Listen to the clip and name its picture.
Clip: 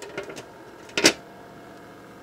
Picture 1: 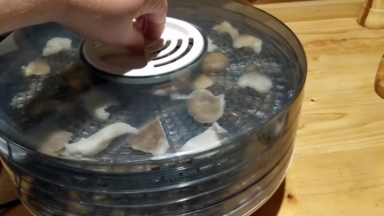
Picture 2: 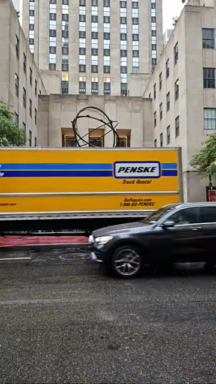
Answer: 1